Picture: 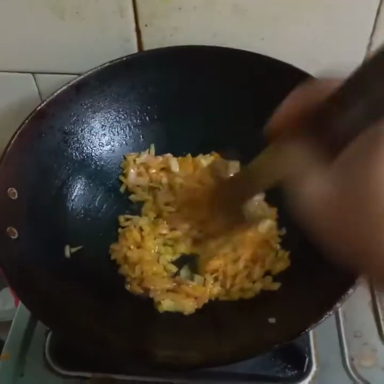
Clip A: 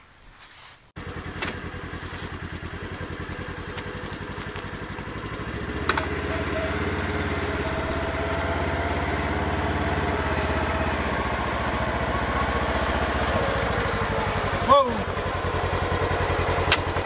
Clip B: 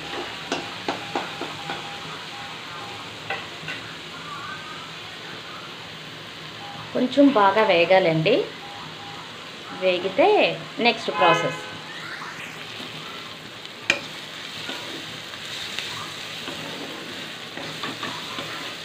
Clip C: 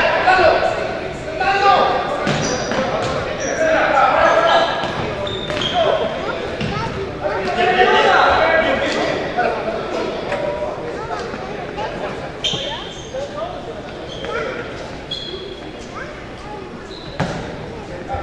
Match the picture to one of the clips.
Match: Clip B